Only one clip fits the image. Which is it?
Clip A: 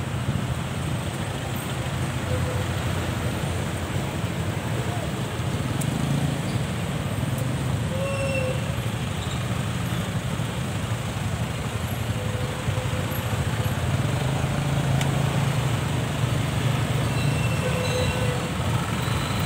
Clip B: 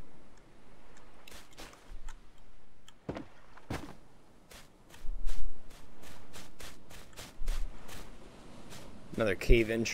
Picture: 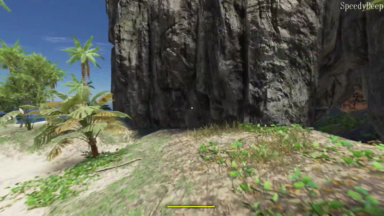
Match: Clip B